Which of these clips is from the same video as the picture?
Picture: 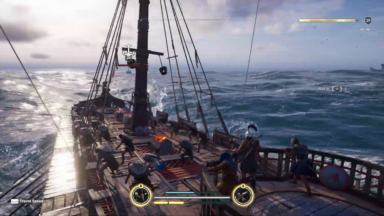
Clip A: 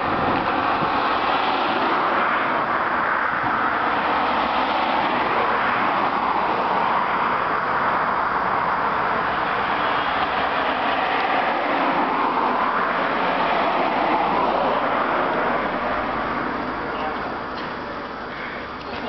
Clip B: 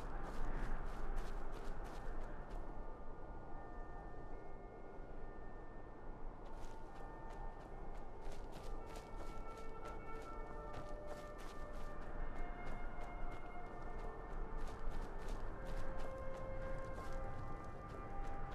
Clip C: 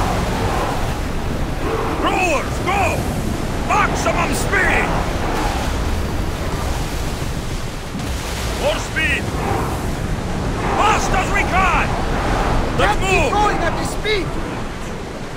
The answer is C